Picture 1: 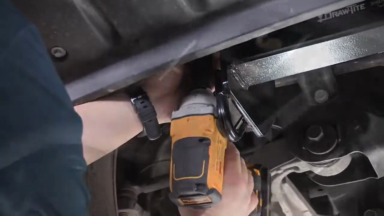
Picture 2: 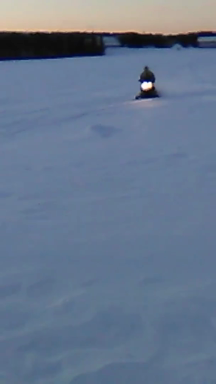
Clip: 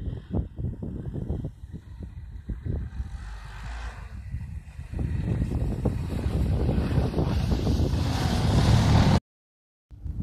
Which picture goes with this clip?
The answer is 2